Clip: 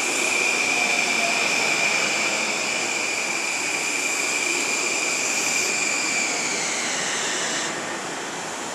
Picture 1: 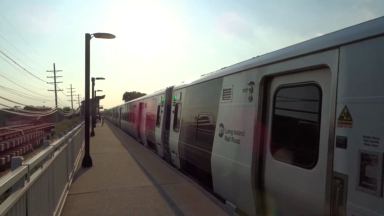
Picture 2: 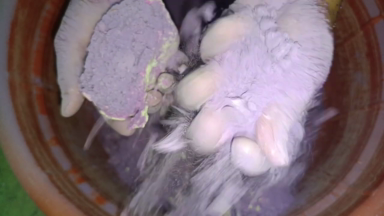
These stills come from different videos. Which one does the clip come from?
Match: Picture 1